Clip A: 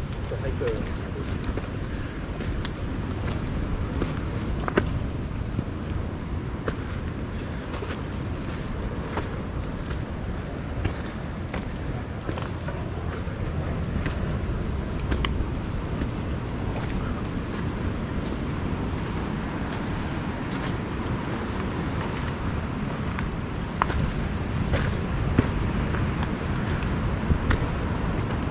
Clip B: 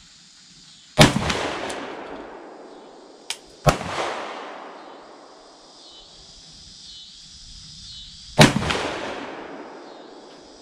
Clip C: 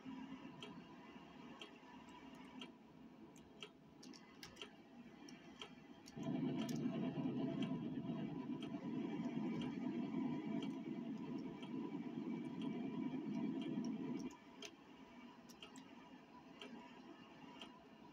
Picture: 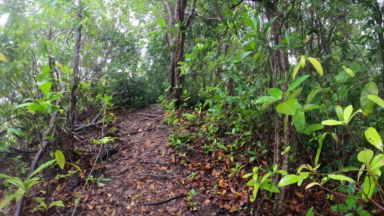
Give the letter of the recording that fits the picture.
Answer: A